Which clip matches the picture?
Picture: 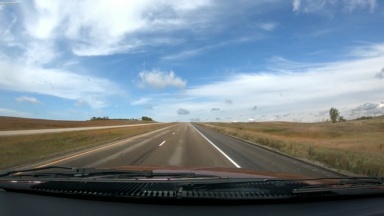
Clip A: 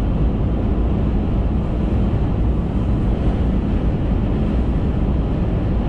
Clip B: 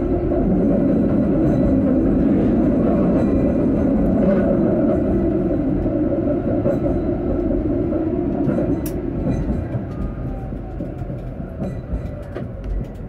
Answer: A